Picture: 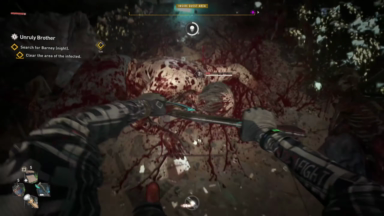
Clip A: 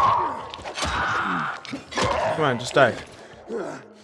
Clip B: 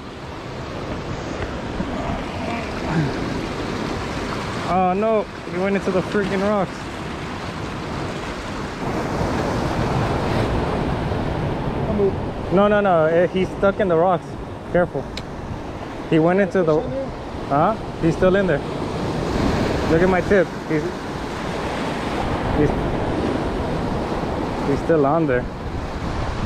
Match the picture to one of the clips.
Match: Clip A